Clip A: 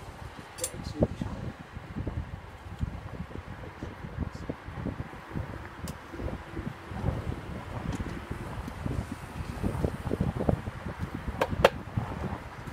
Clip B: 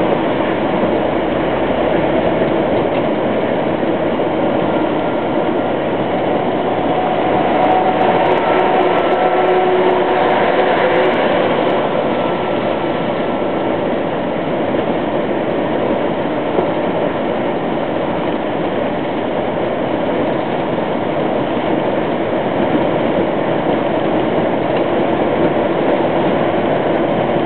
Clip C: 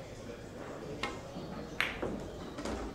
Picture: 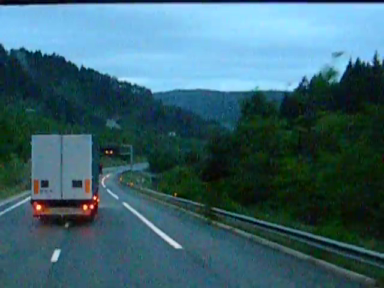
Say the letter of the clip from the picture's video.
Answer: B